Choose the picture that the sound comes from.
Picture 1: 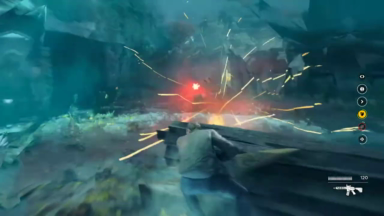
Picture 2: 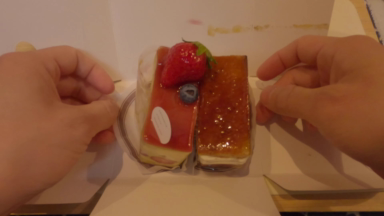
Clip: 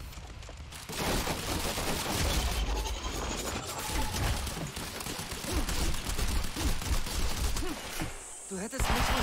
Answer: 1